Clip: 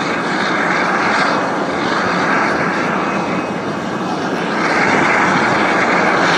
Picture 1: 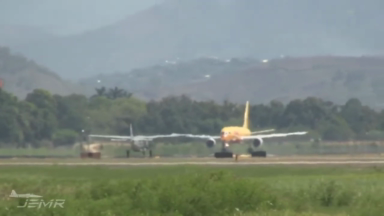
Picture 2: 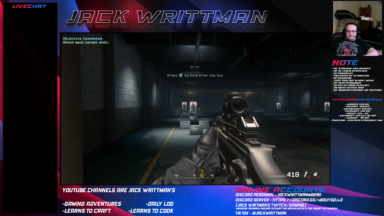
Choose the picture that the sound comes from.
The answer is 1